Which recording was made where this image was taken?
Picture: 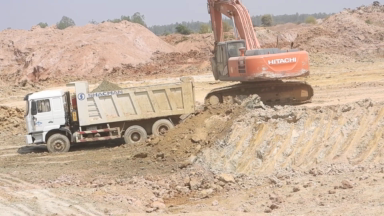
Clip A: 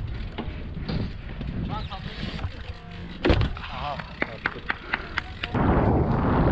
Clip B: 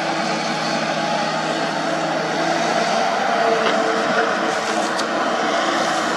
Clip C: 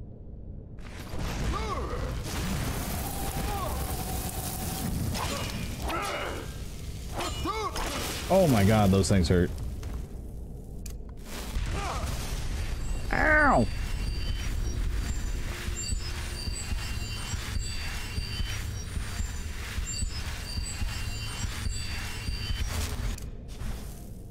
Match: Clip B